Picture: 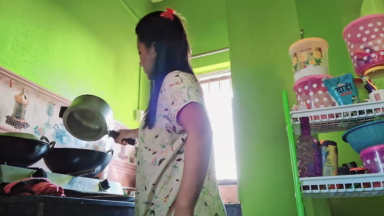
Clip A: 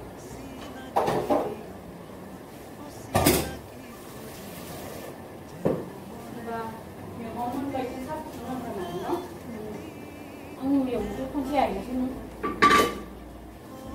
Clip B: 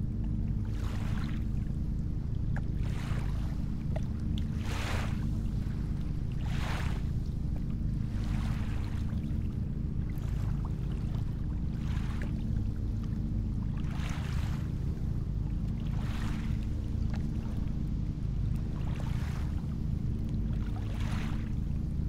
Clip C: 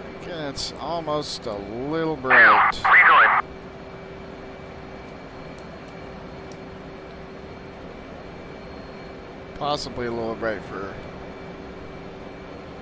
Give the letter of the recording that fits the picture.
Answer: A